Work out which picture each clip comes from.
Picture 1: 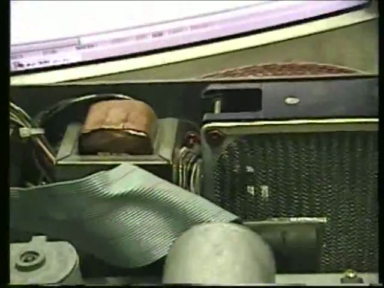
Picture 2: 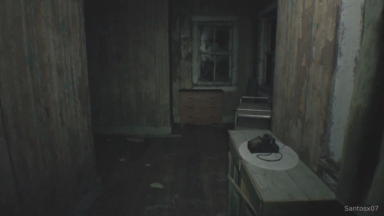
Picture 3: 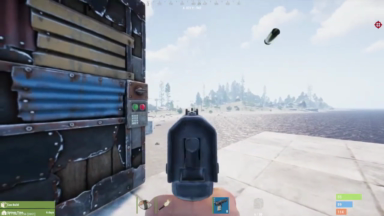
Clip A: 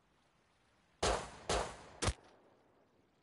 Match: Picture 3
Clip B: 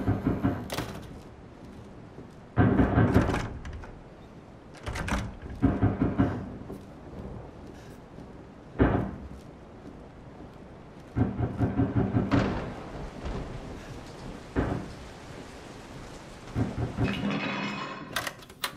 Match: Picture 2